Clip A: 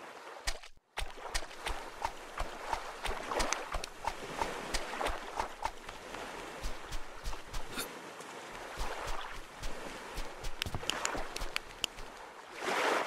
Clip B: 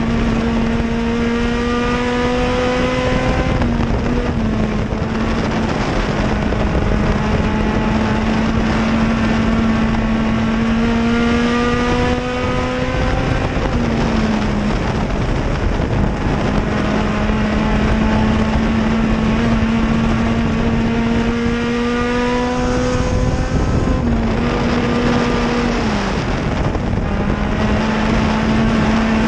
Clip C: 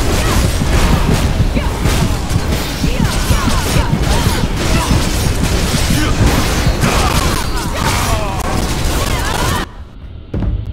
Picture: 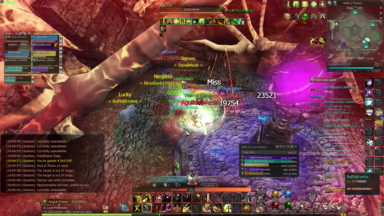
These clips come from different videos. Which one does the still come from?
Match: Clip C